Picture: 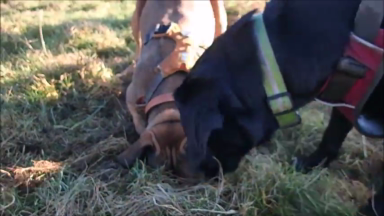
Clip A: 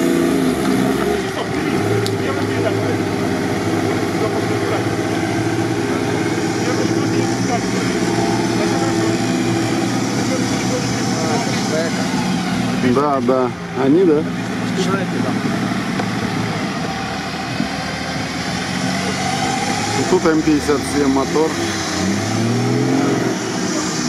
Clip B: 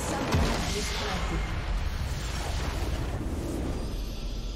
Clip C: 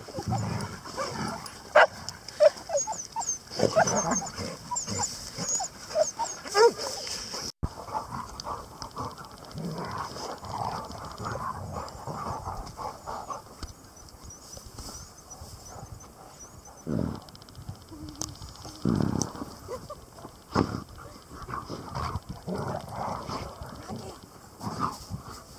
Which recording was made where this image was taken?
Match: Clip C